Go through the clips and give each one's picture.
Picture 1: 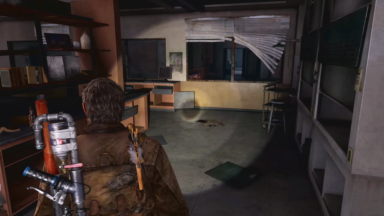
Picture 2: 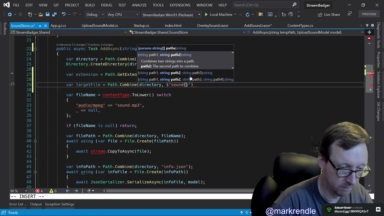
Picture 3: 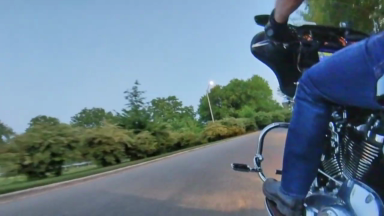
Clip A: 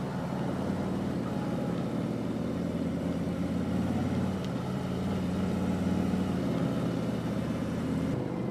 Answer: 3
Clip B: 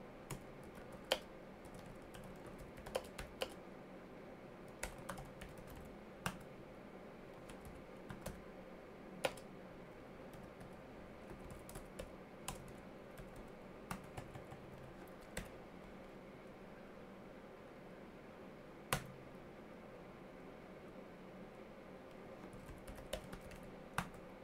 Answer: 2